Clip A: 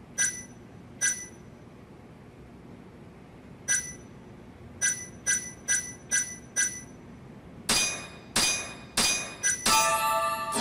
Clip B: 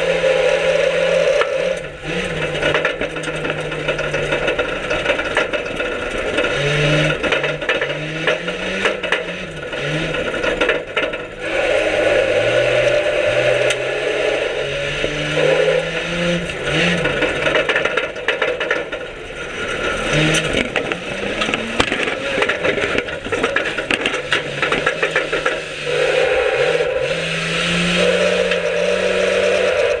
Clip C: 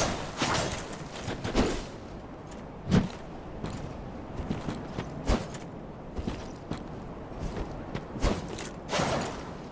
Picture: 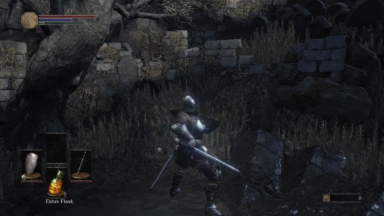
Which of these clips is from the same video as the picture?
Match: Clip C